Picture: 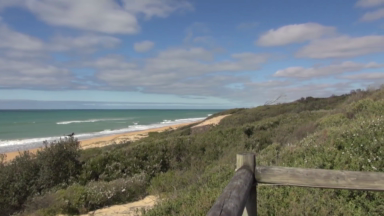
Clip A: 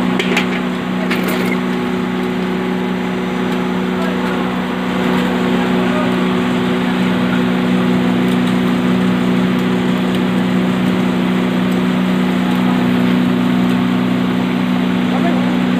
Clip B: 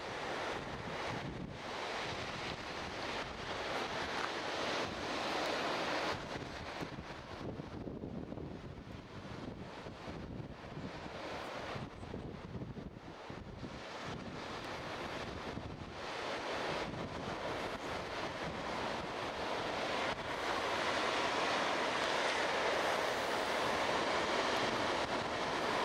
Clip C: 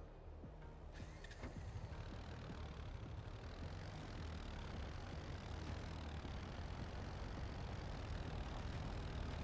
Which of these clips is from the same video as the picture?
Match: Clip B